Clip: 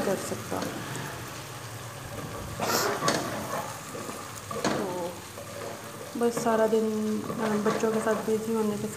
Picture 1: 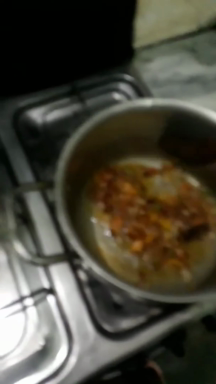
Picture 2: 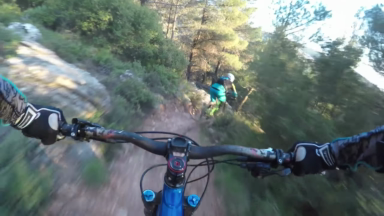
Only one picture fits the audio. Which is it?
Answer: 1